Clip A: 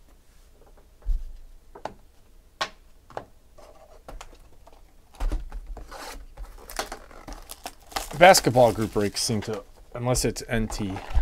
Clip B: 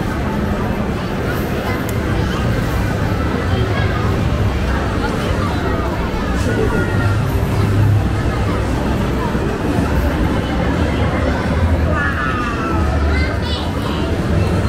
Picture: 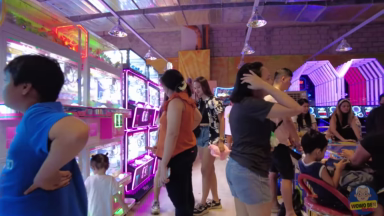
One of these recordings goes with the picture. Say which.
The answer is B